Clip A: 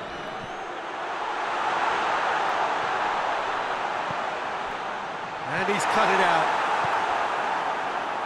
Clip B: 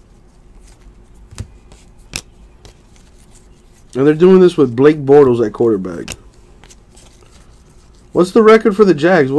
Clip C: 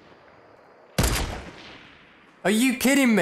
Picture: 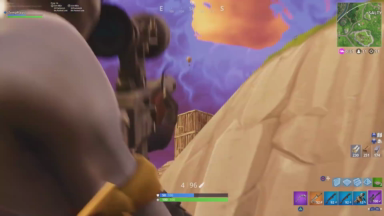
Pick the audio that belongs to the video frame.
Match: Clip C